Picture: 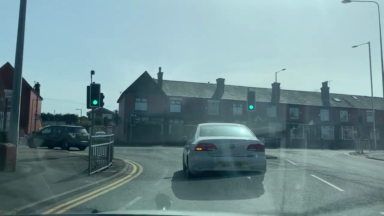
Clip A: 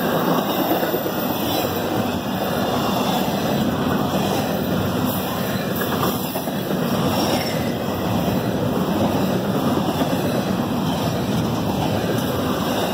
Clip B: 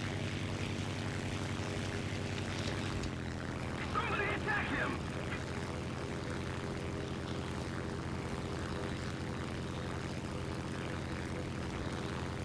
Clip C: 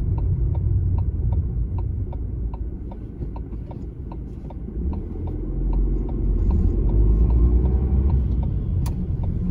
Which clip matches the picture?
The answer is C